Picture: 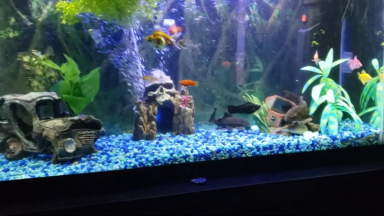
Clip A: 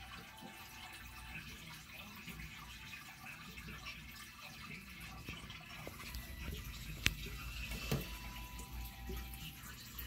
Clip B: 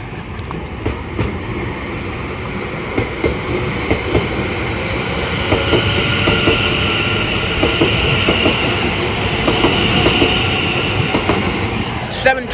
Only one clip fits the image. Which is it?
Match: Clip A